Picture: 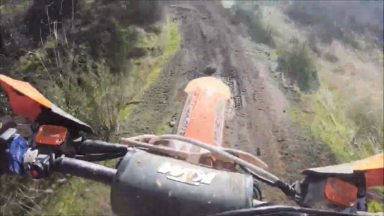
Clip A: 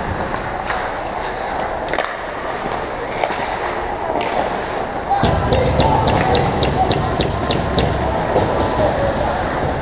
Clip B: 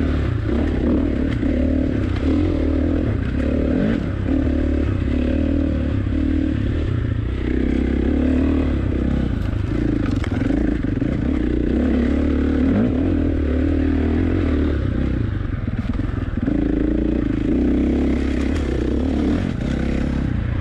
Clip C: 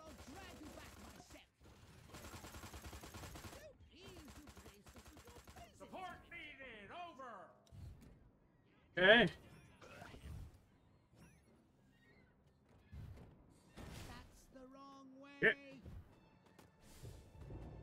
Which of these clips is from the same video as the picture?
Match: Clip B